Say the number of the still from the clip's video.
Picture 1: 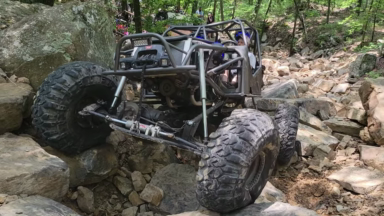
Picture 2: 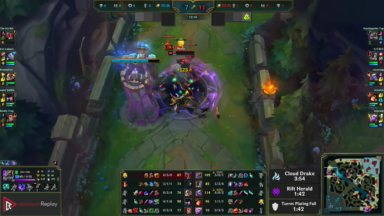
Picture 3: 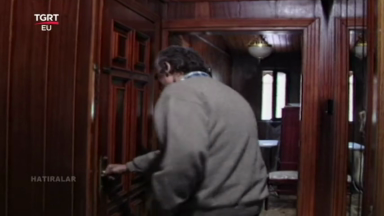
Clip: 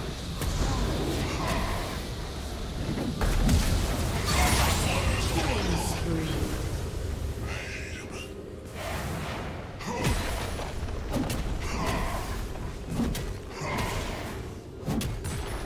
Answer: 2